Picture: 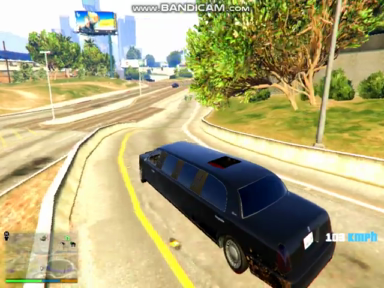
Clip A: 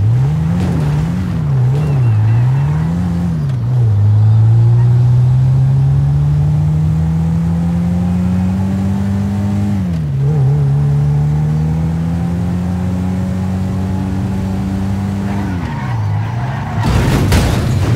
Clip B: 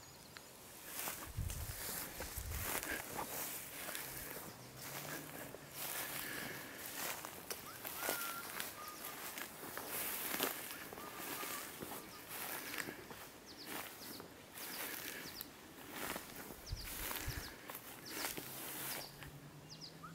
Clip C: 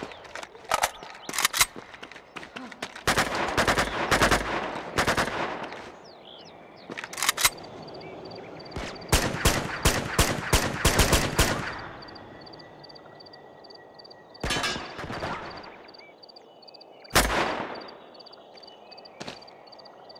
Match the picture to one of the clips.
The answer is A